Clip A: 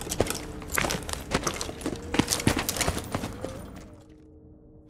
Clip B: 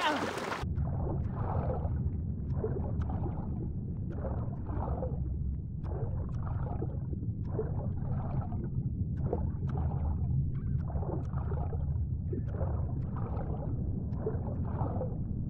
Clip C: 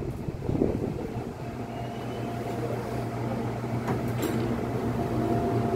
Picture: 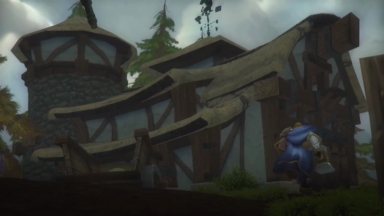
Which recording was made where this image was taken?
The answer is A